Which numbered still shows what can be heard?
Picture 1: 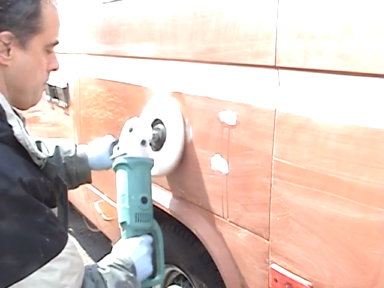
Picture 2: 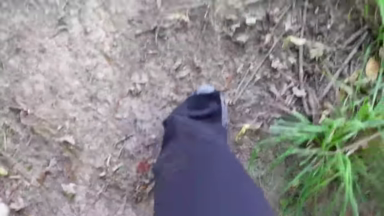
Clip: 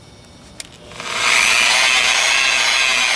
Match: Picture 1